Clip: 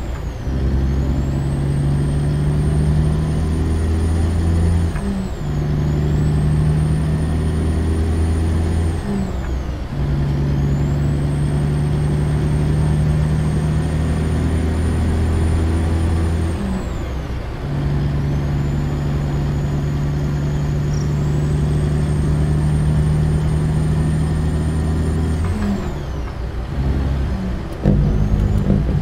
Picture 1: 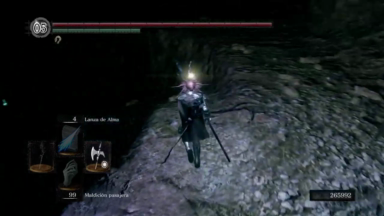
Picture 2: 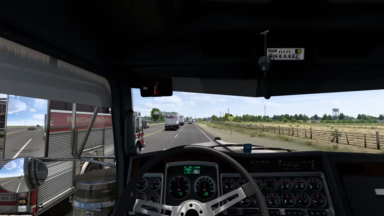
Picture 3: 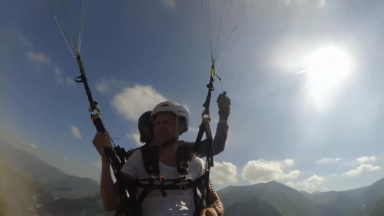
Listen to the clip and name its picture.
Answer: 2